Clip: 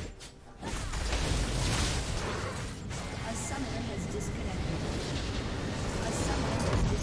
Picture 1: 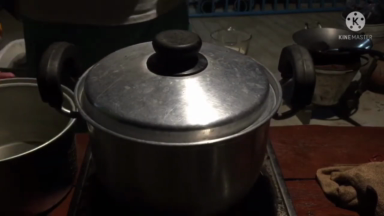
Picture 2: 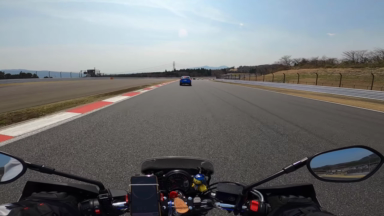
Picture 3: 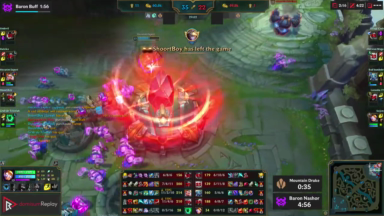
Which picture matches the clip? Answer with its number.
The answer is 3